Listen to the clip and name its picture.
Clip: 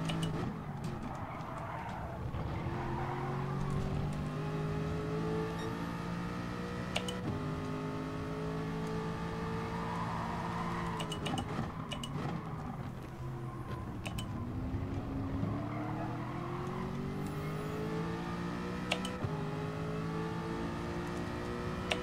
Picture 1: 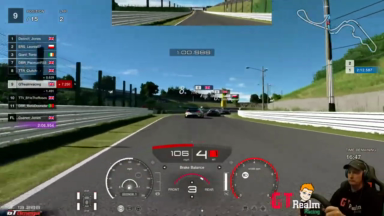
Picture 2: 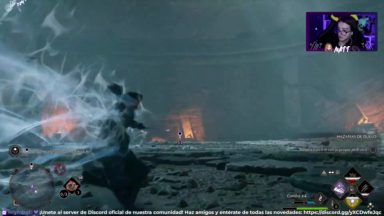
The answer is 1